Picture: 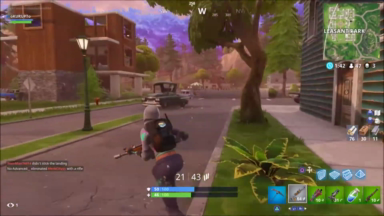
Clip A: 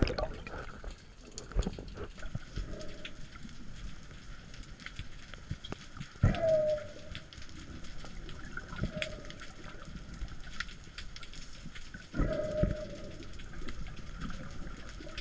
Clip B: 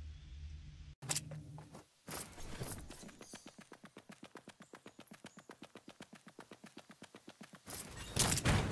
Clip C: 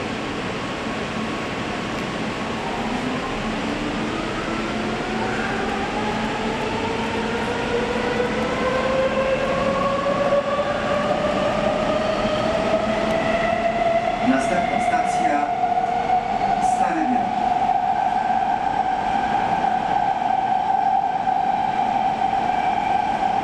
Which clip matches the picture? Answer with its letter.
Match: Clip B